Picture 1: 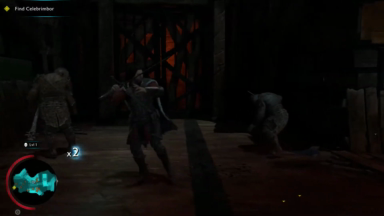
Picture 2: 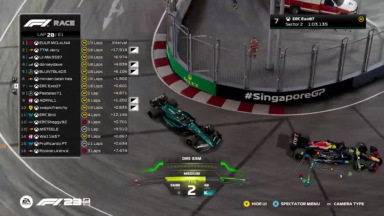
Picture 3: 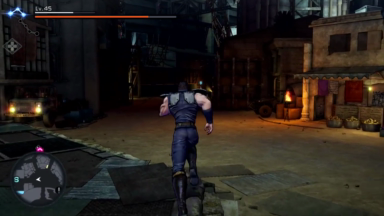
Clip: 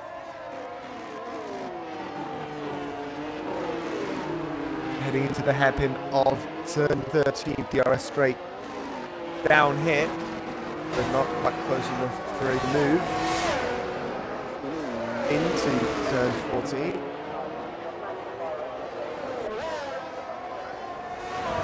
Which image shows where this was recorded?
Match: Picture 2